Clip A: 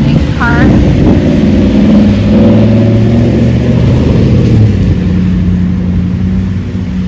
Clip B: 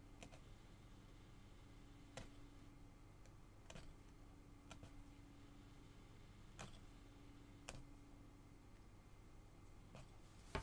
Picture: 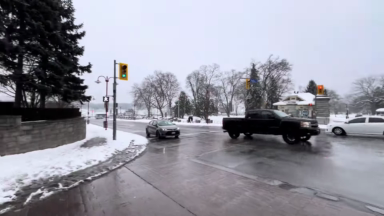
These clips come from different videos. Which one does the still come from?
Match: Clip A